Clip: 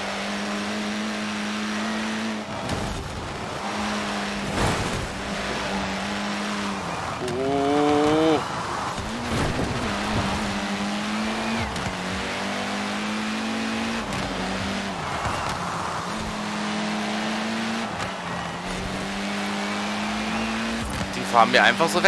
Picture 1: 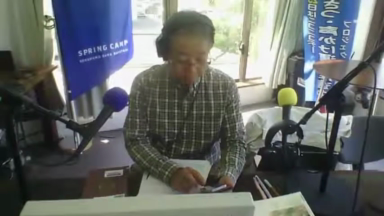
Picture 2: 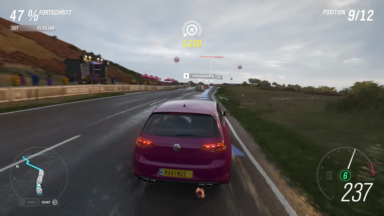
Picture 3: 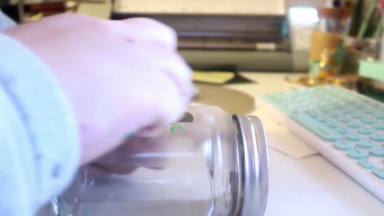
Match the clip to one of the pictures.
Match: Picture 2